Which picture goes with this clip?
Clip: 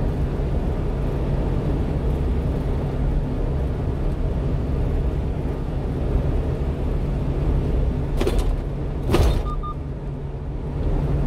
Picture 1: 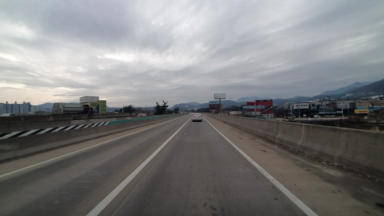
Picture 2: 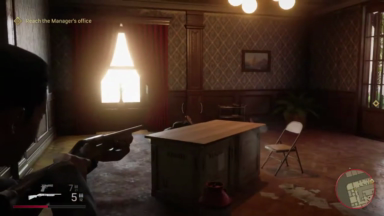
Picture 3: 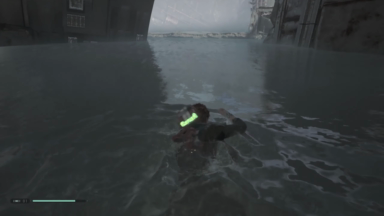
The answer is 1